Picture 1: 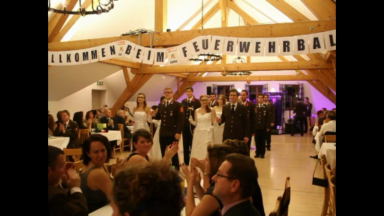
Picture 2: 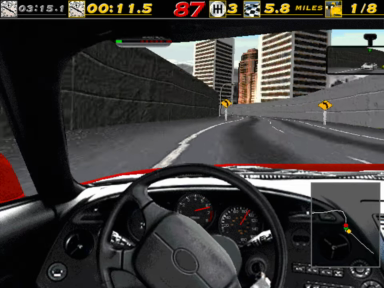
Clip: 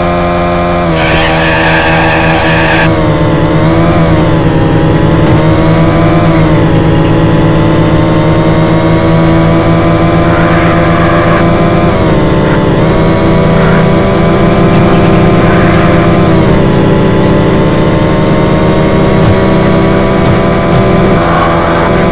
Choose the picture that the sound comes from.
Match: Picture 2